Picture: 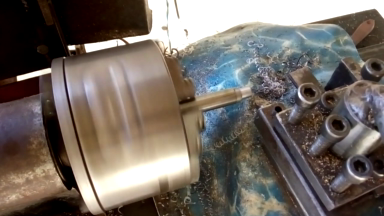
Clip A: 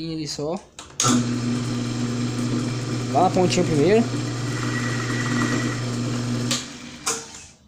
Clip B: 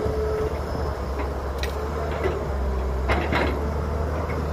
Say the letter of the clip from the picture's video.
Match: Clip A